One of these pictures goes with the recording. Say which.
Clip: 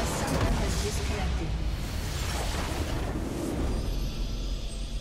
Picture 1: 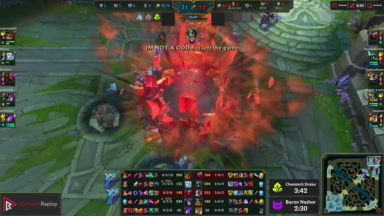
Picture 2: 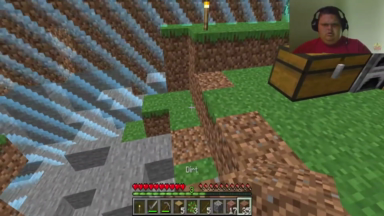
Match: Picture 1